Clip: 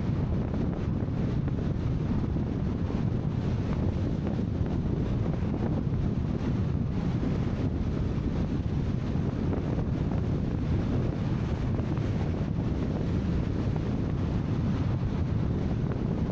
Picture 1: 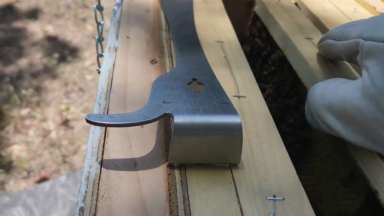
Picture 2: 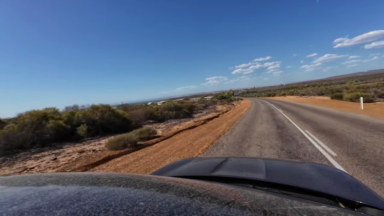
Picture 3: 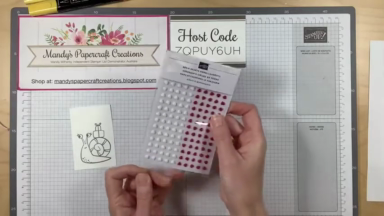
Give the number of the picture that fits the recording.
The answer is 2